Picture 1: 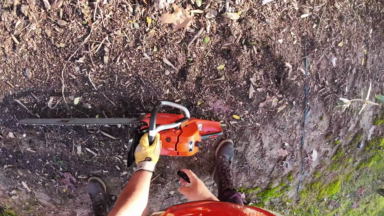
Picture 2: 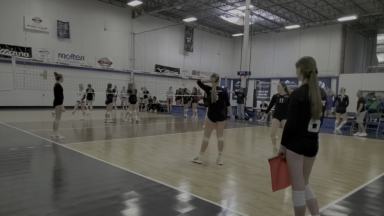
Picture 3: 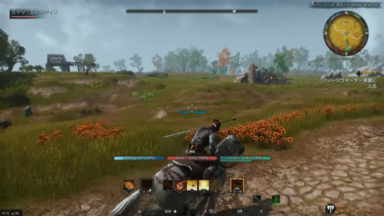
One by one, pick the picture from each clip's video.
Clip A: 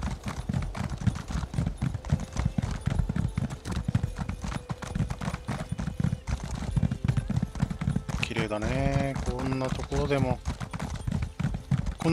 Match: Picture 3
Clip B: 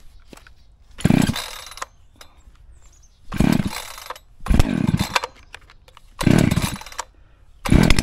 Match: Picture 1